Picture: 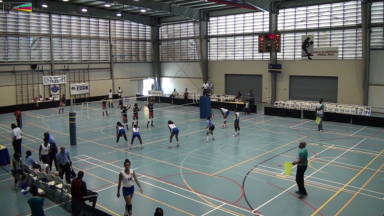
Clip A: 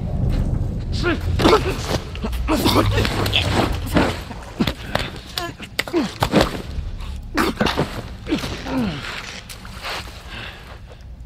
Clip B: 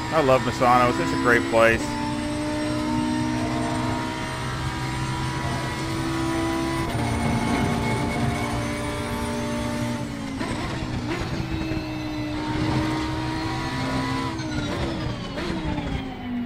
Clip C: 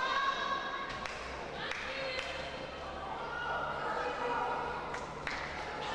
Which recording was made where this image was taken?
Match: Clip C